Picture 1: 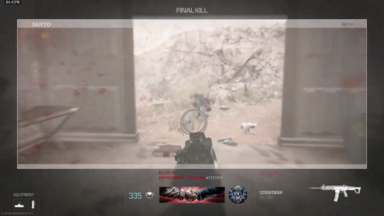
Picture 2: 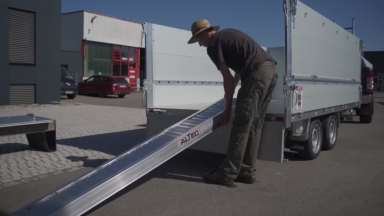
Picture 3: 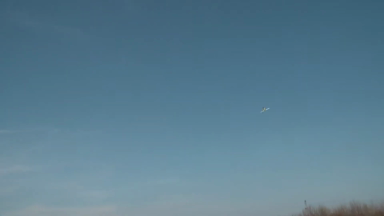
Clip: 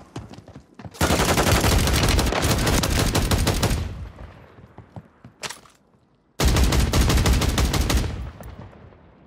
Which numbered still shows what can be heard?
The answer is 1